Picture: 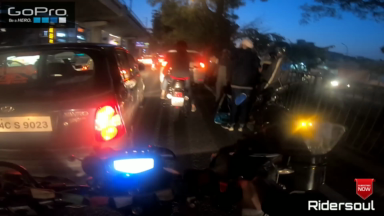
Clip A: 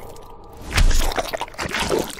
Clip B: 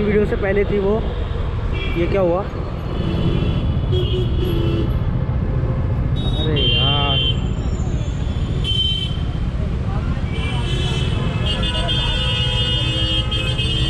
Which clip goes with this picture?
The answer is B